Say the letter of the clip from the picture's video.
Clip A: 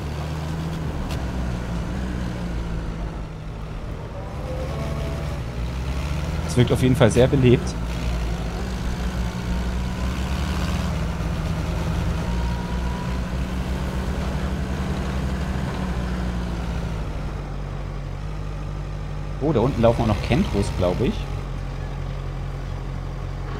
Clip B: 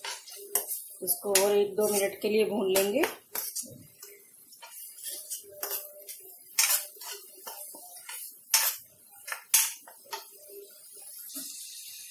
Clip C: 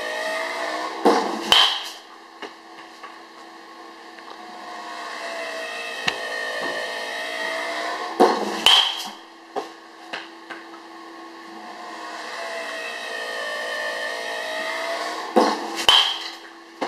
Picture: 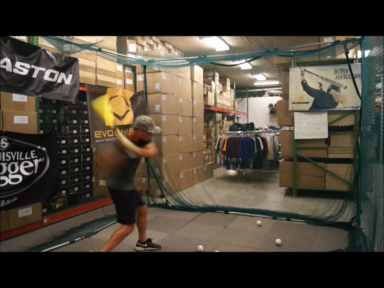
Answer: C